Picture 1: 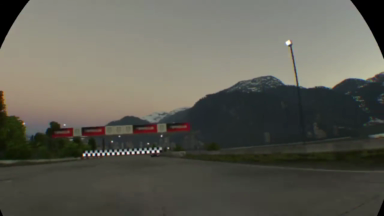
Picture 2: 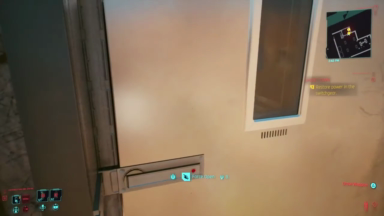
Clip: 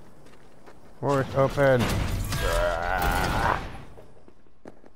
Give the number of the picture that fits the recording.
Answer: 2